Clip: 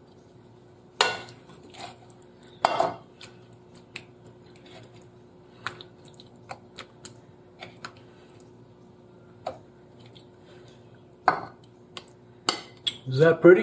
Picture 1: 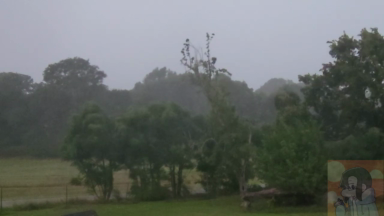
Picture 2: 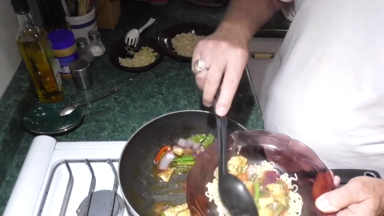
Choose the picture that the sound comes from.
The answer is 2